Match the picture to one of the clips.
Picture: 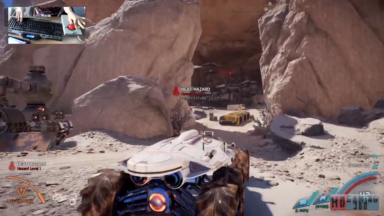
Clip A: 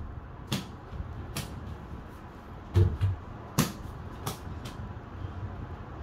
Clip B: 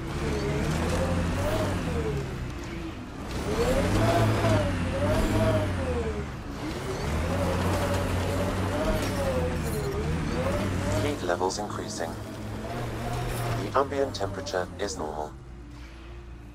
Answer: B